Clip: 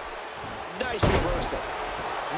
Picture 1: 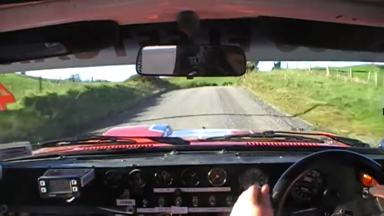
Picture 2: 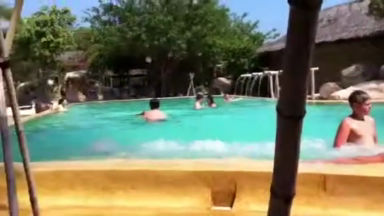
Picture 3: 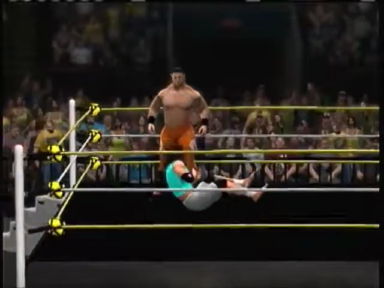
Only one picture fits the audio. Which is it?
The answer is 3